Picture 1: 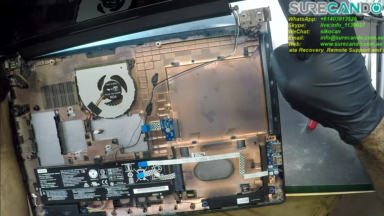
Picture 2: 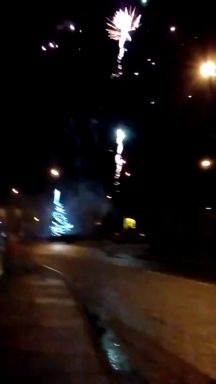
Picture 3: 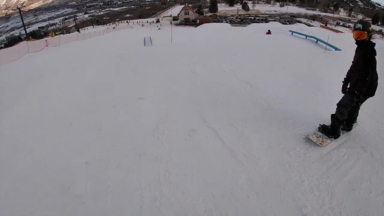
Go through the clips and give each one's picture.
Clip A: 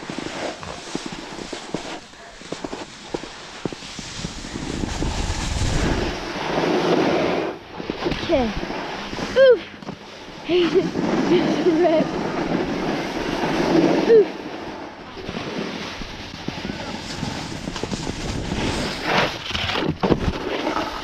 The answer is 3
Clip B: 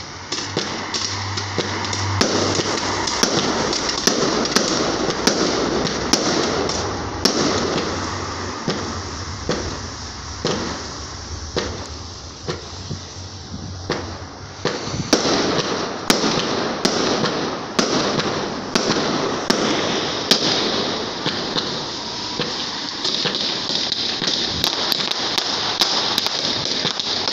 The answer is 2